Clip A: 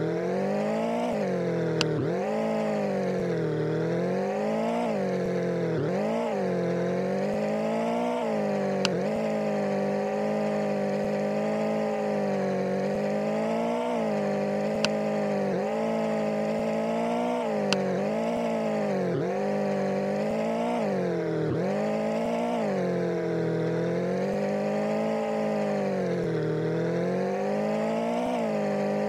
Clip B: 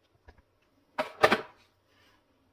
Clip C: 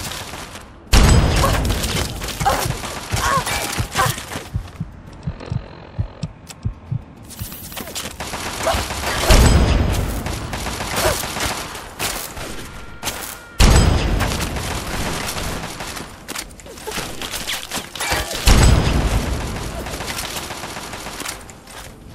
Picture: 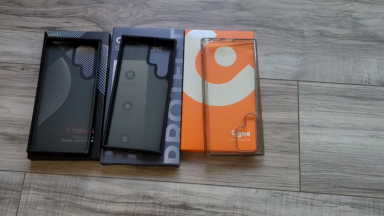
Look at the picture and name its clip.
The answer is B